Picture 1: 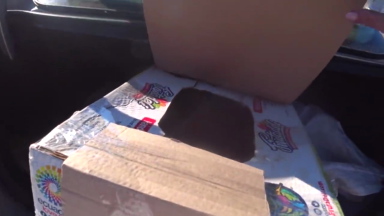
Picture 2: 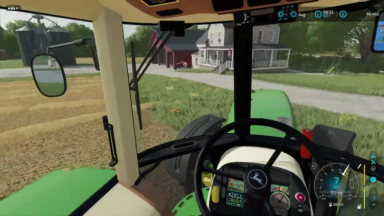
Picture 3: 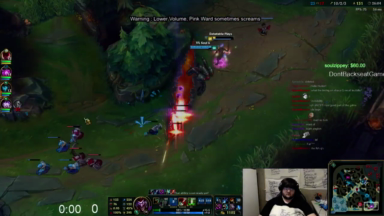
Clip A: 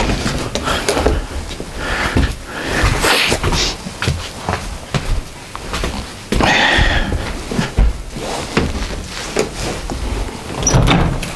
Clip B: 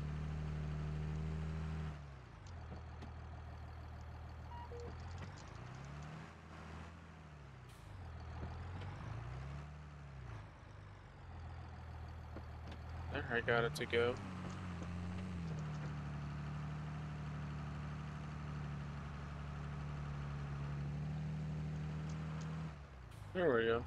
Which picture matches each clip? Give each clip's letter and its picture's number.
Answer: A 1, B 2